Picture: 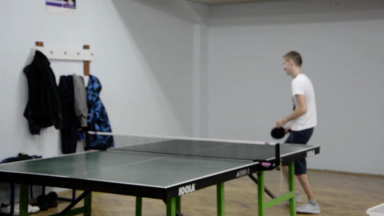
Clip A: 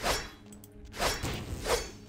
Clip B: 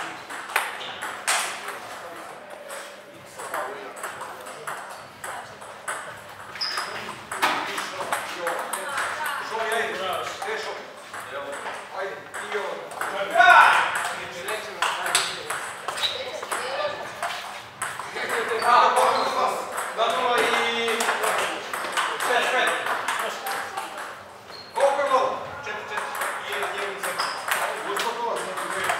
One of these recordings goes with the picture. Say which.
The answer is B